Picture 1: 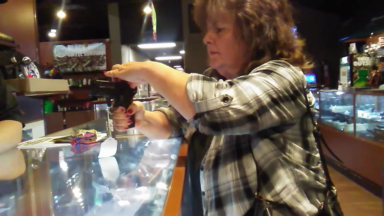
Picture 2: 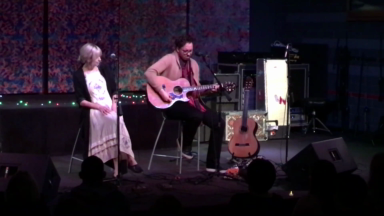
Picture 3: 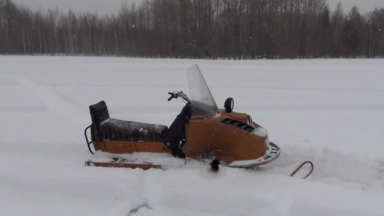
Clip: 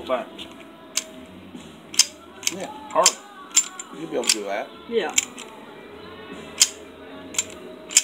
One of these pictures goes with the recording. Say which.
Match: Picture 1